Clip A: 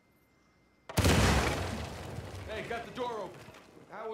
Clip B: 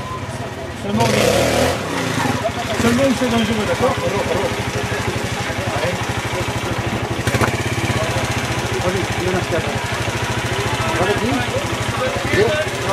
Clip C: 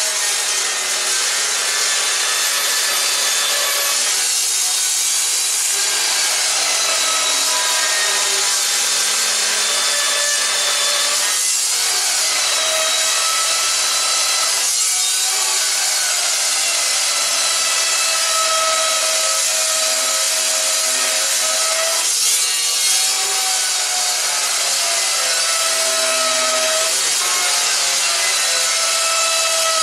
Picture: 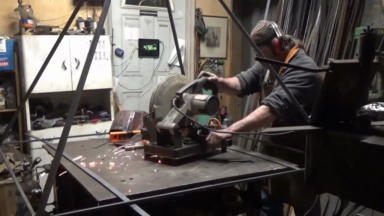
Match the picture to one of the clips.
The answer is C